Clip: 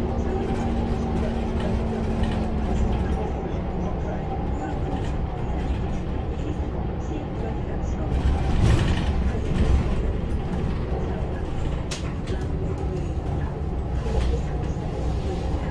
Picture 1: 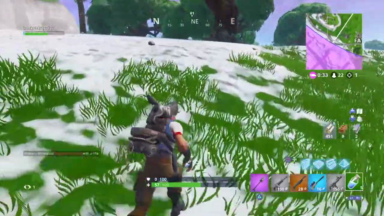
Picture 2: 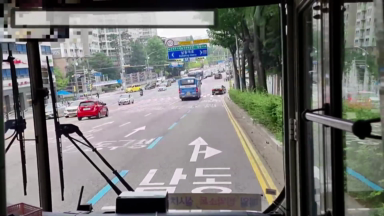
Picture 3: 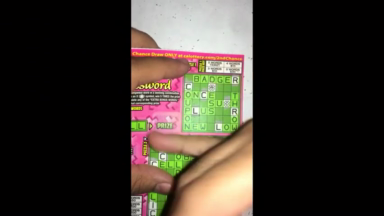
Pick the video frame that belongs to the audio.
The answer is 2